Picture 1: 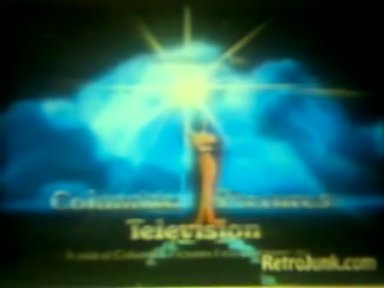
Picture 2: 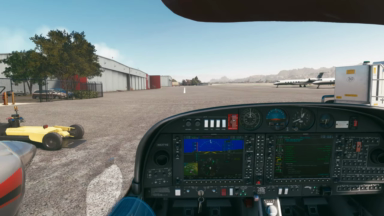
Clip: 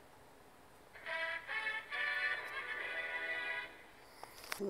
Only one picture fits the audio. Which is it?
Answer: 1